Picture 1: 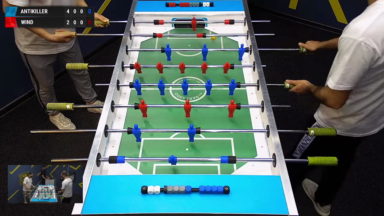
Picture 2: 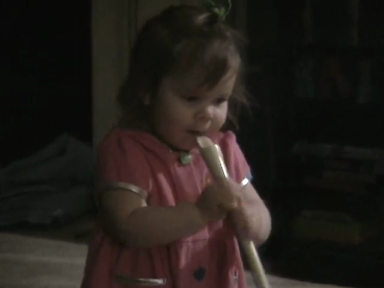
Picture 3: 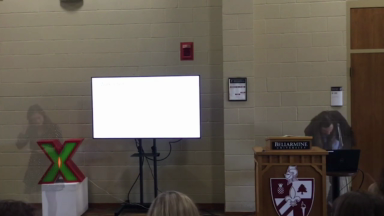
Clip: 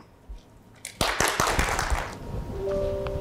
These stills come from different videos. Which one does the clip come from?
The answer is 3